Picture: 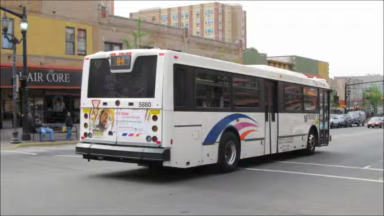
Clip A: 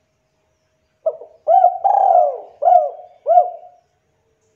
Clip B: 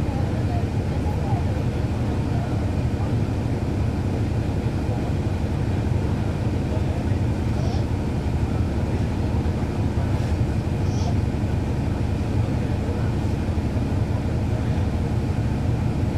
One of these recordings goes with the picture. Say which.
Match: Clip B